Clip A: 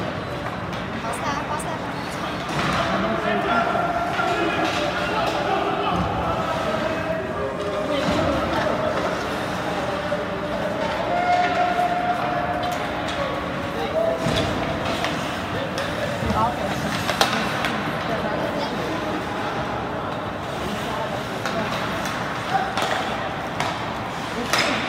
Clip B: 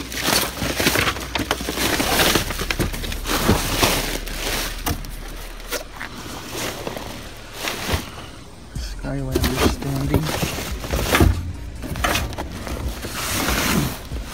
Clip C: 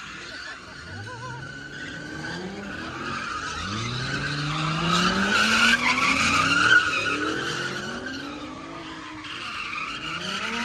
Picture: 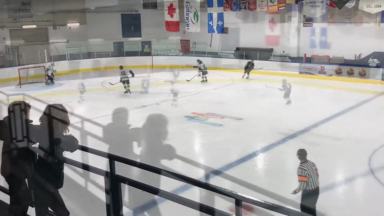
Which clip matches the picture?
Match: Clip A